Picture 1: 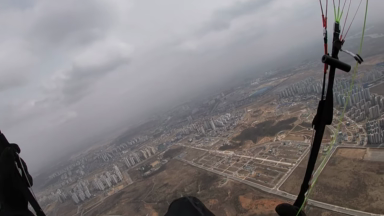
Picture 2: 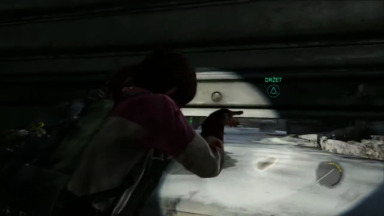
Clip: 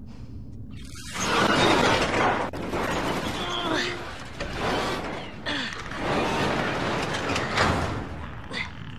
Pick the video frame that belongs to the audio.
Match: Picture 2